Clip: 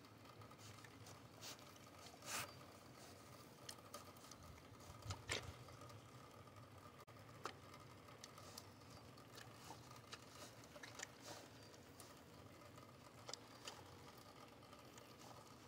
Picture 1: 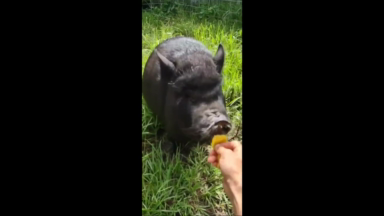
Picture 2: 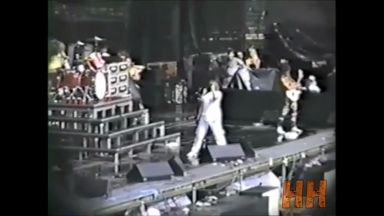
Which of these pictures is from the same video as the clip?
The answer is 1